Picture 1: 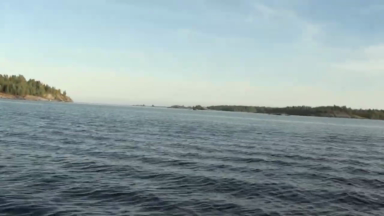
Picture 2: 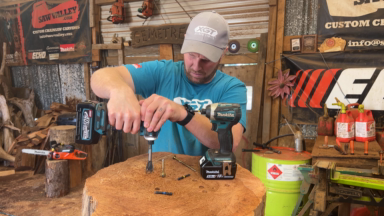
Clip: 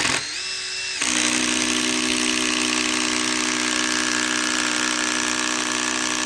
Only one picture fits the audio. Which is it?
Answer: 2